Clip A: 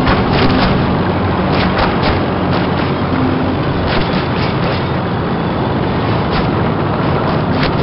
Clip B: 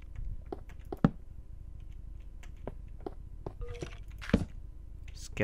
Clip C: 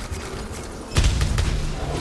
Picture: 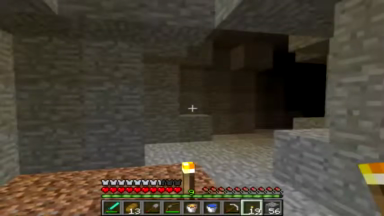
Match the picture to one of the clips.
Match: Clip B